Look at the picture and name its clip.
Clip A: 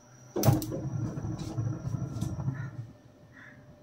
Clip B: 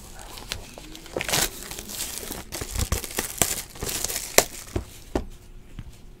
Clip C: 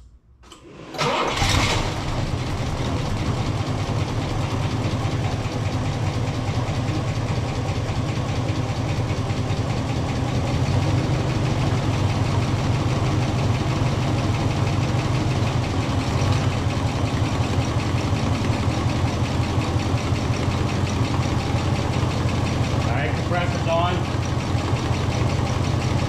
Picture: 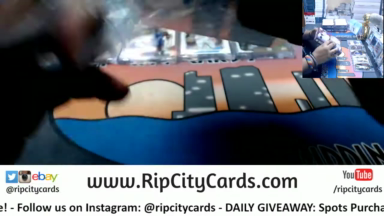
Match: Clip B